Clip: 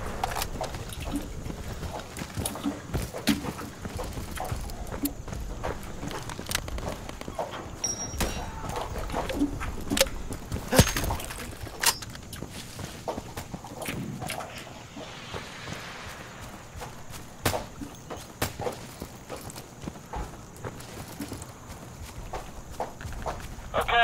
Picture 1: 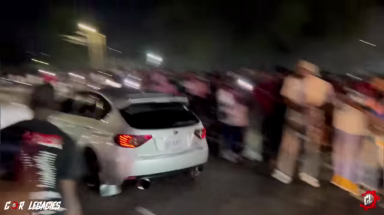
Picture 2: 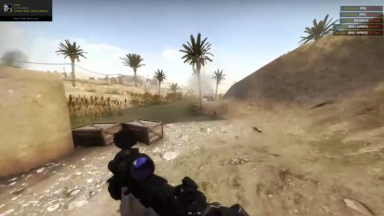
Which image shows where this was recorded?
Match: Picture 2